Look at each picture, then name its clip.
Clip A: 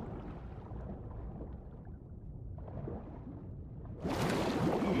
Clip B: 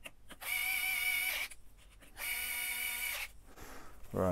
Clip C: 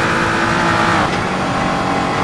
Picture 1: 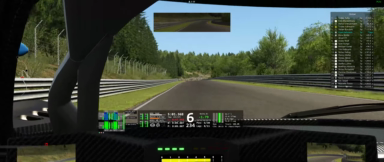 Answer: C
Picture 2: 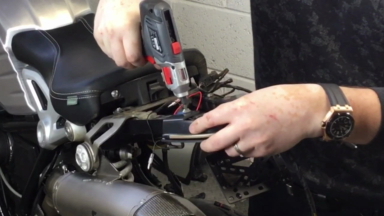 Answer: B